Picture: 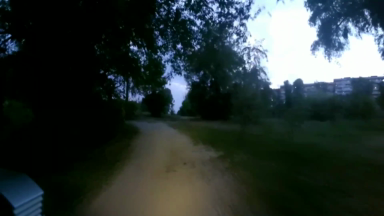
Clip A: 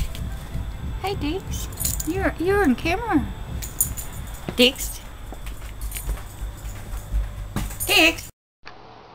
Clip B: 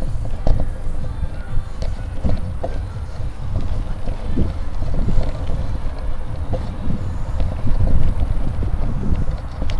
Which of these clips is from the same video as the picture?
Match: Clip B